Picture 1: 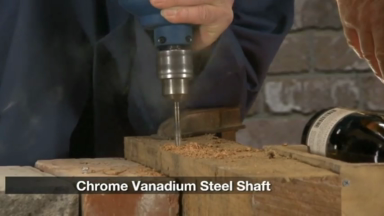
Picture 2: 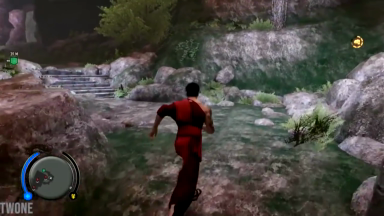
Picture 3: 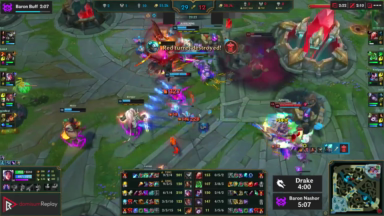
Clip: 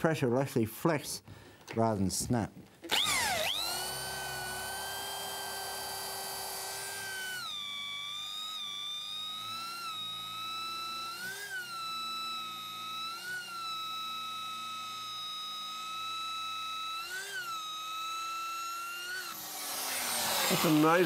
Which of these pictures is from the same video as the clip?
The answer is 1